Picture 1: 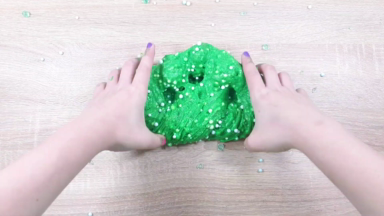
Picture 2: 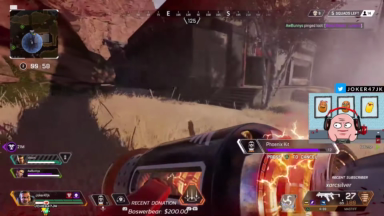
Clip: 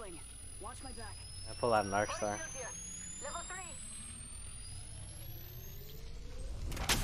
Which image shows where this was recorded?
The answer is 2